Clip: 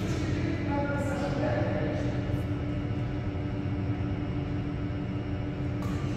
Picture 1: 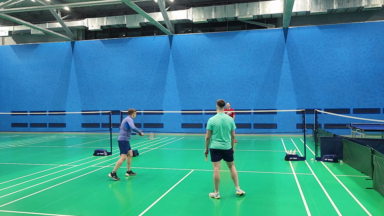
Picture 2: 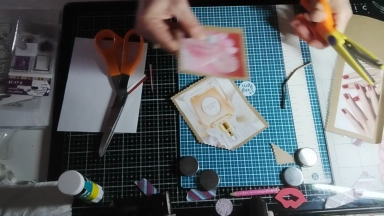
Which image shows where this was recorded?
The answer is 1